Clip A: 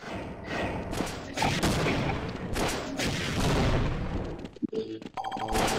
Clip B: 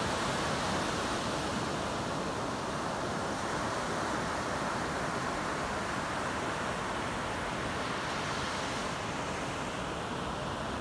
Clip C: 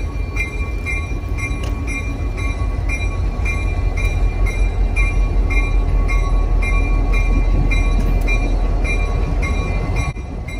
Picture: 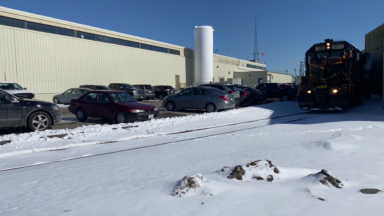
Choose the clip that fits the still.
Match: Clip C